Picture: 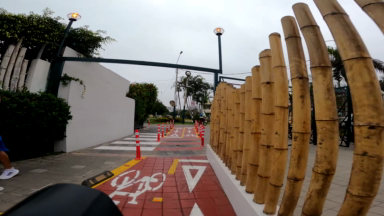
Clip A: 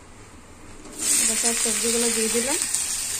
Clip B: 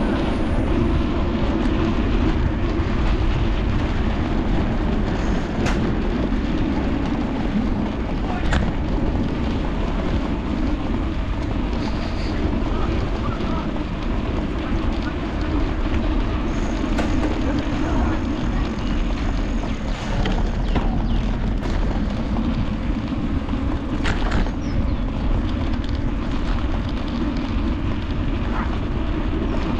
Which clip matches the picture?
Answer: B